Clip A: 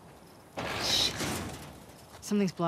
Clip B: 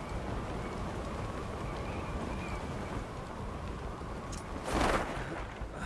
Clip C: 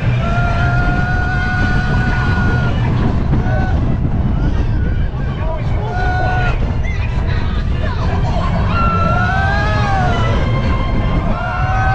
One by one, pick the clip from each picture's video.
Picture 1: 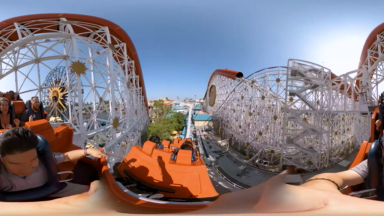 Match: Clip C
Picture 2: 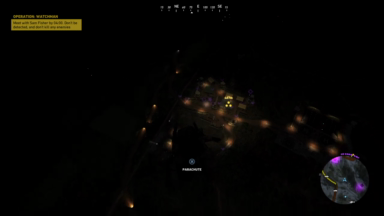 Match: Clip B